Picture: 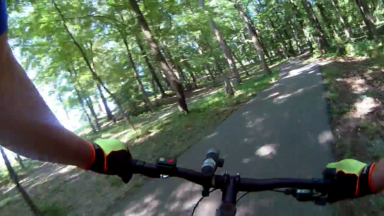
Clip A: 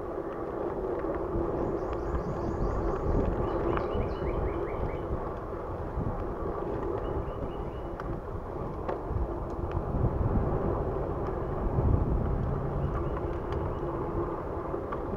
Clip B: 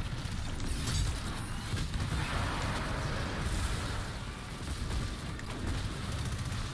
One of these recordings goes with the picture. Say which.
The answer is A